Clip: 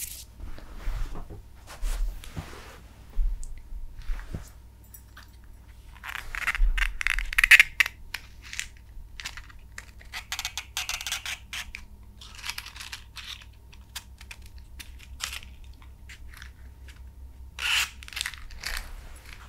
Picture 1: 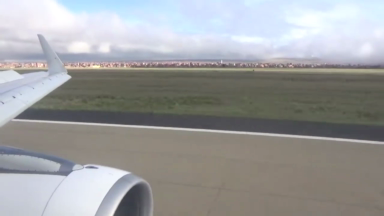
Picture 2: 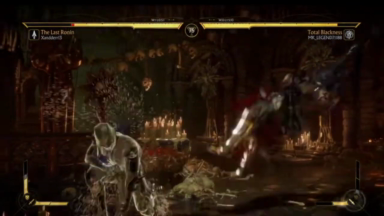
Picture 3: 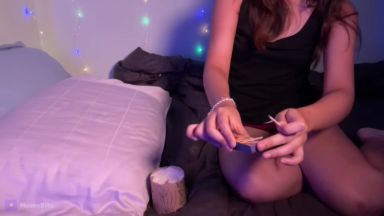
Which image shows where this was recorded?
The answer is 3